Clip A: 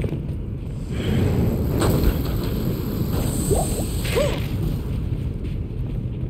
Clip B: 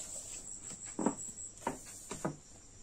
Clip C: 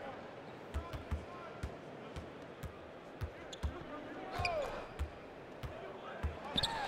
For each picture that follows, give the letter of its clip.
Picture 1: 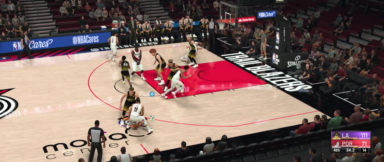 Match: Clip C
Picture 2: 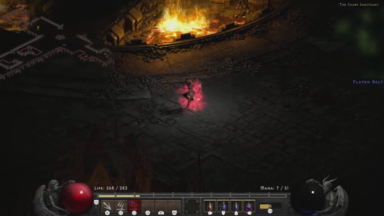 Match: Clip A